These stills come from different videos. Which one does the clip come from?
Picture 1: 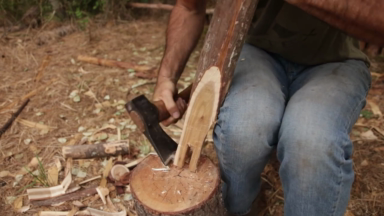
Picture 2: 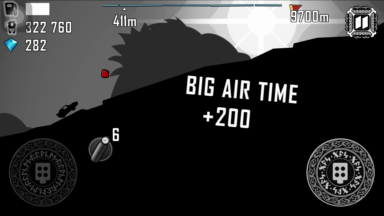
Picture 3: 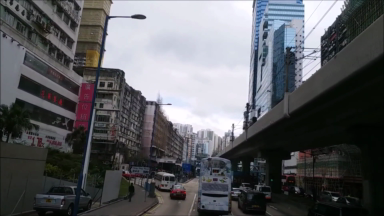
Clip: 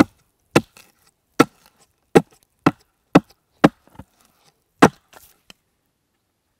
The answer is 1